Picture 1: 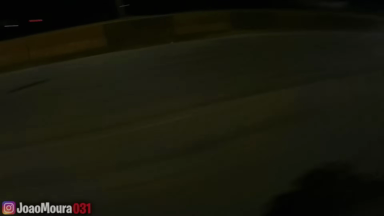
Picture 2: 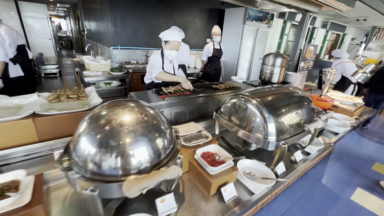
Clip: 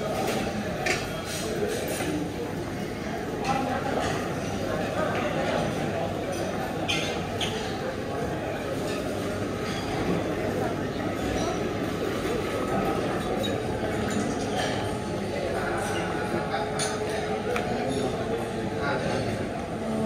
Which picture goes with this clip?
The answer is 2